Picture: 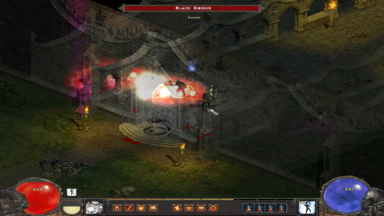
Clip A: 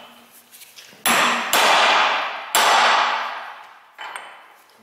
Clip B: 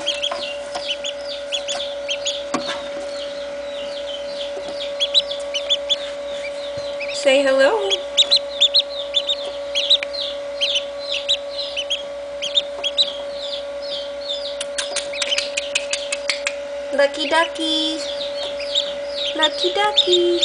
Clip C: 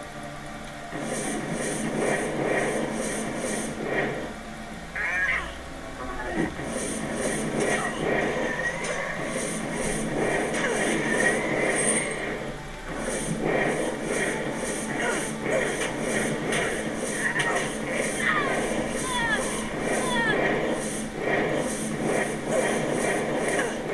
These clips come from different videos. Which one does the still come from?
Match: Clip C